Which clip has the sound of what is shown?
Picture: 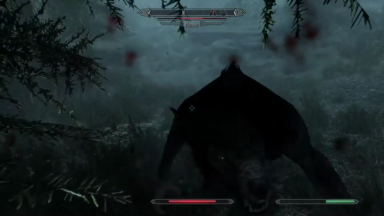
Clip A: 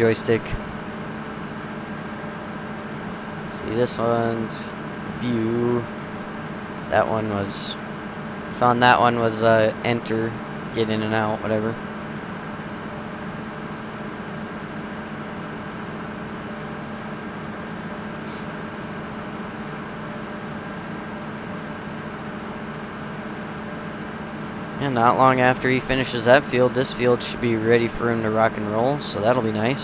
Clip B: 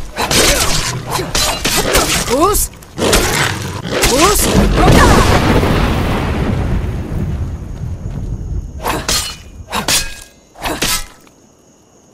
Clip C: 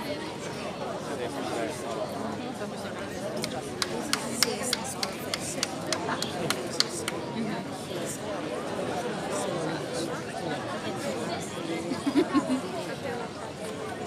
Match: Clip B